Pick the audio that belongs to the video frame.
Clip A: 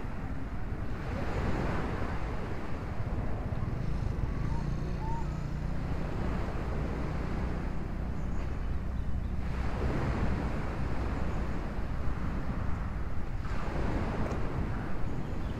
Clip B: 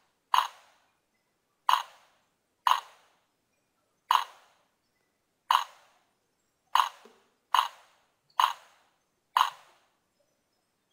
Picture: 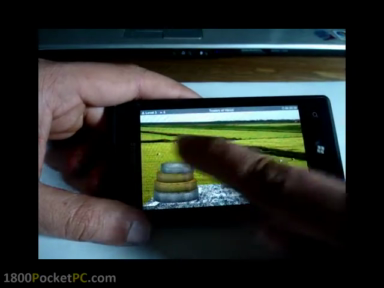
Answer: B